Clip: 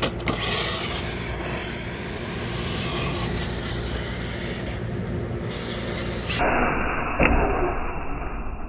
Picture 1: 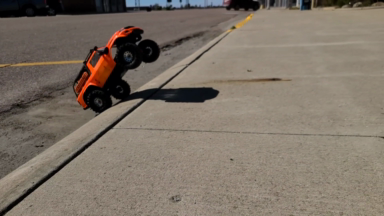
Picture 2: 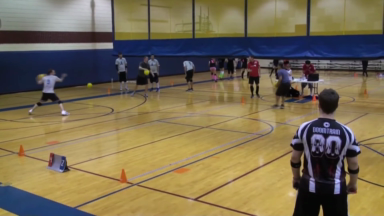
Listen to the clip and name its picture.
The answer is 1